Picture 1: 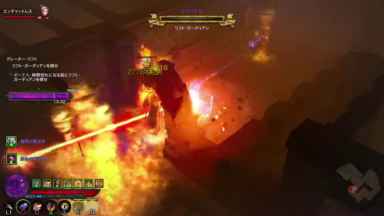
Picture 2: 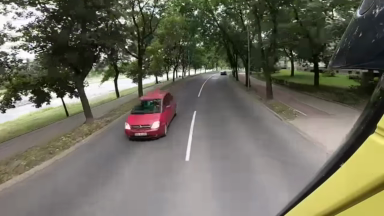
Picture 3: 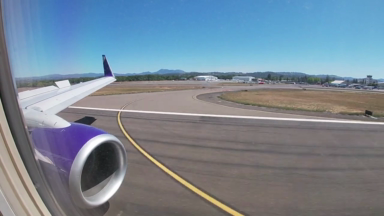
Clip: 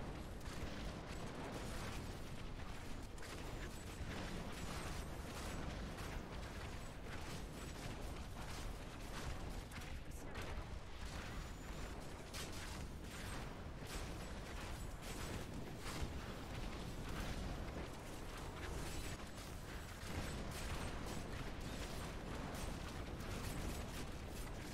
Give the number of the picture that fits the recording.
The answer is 1